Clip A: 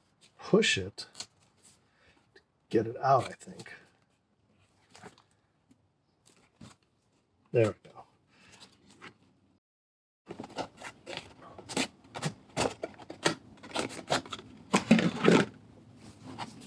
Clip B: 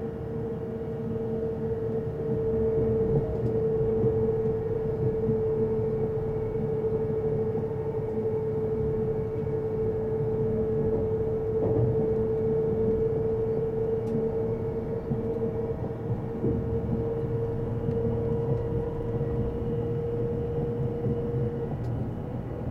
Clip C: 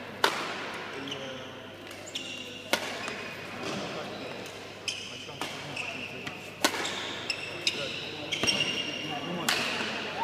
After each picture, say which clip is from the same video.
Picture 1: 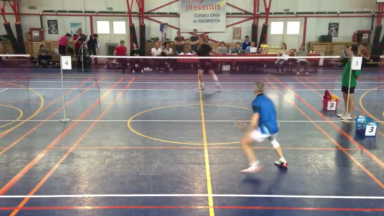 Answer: C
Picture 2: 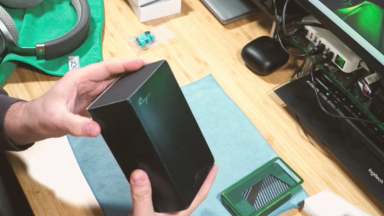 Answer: A